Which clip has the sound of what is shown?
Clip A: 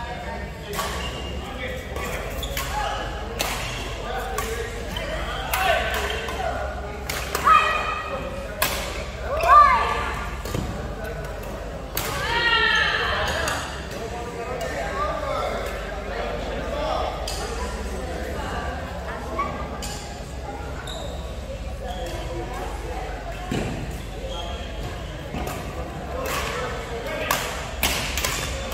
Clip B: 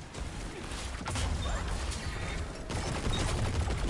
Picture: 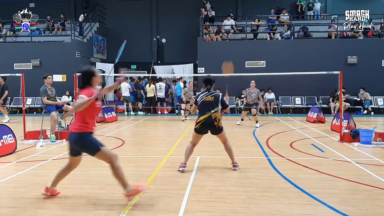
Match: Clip A